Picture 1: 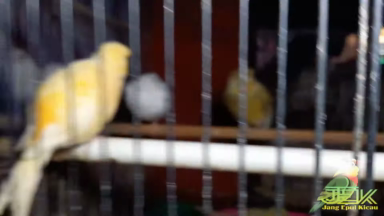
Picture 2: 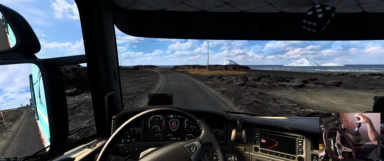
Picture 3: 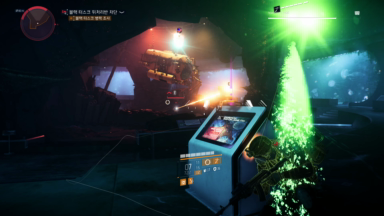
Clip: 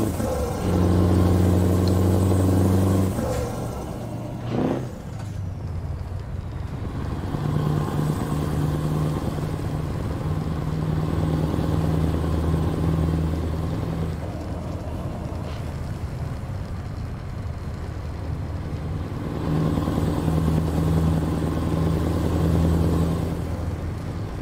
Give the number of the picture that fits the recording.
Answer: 2